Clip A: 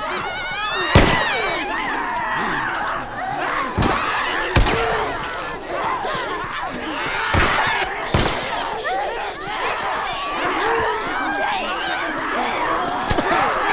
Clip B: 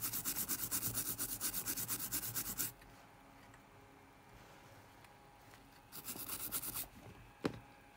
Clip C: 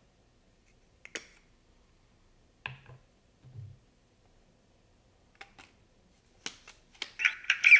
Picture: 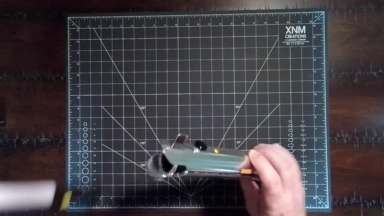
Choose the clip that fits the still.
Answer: C